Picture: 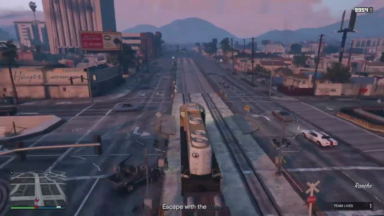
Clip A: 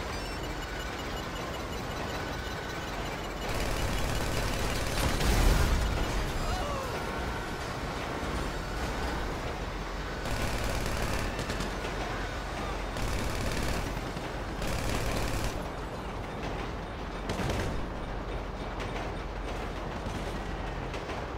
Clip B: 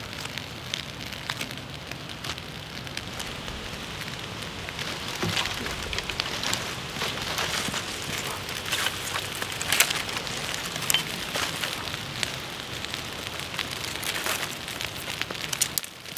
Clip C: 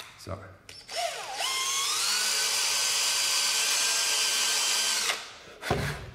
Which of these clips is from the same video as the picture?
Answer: A